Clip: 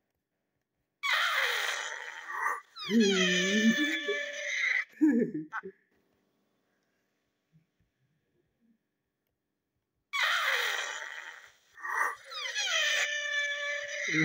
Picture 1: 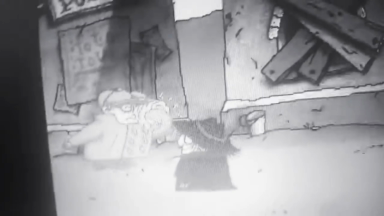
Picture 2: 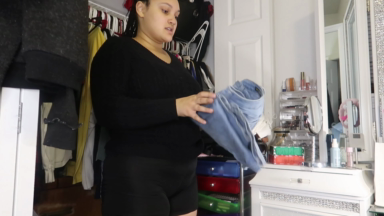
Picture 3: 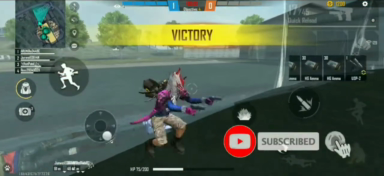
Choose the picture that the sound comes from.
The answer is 1